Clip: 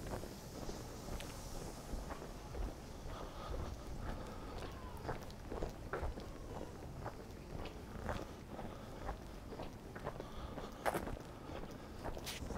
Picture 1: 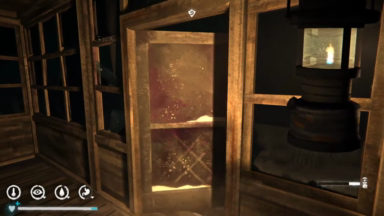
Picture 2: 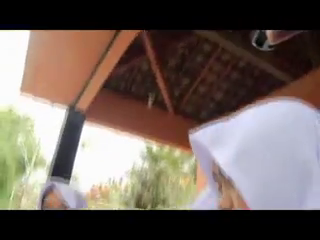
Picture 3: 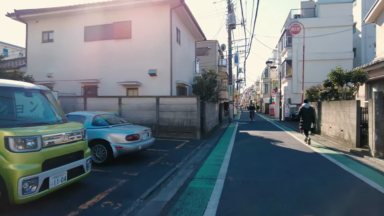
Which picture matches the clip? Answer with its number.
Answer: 3